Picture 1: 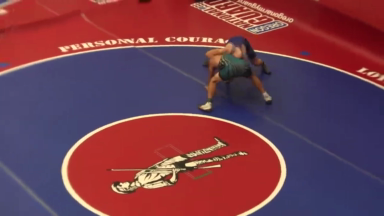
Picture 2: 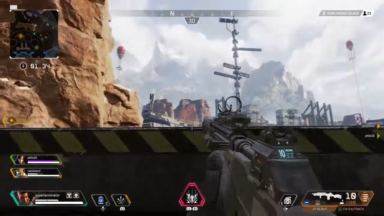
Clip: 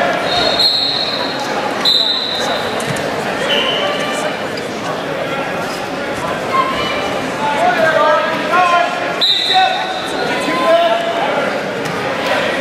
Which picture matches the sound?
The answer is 1